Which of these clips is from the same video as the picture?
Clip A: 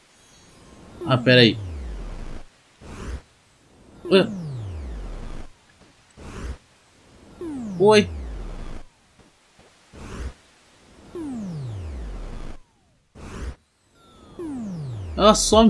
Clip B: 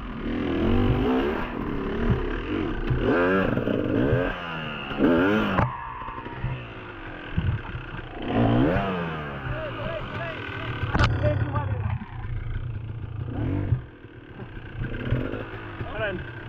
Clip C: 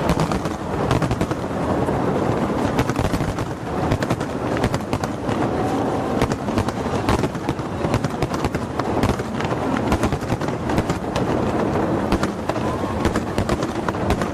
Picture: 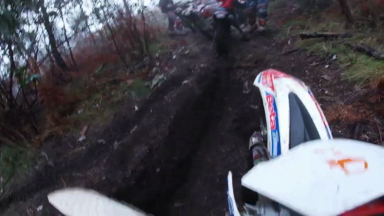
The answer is B